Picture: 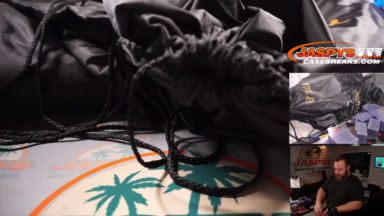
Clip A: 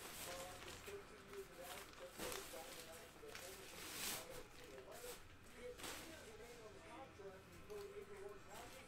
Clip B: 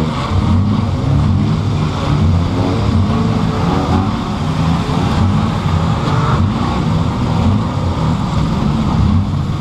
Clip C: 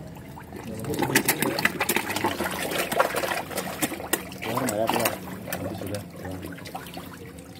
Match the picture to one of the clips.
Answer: A